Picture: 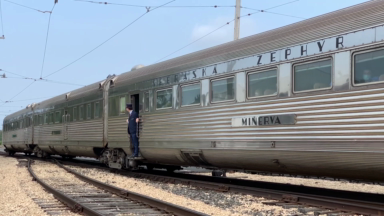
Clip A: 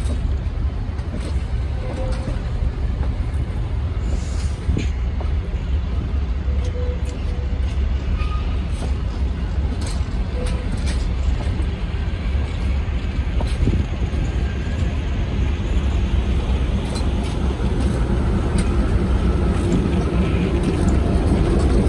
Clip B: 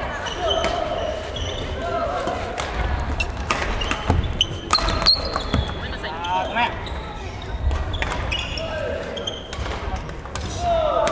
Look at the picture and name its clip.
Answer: A